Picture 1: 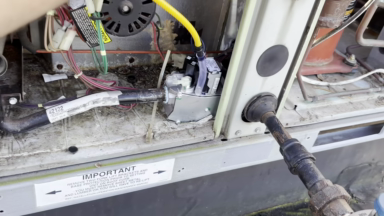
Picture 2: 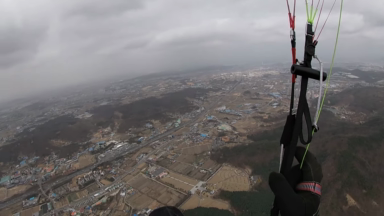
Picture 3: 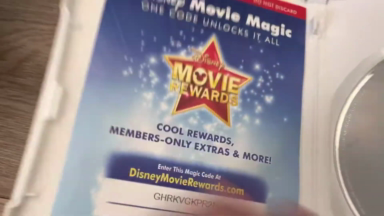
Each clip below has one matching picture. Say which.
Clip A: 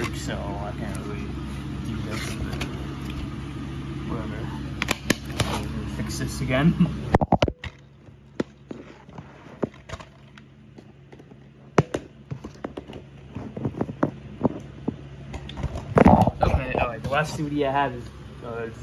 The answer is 3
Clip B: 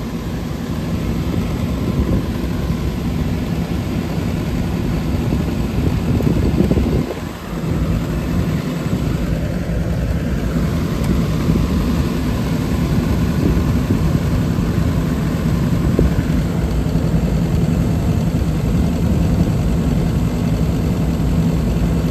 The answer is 1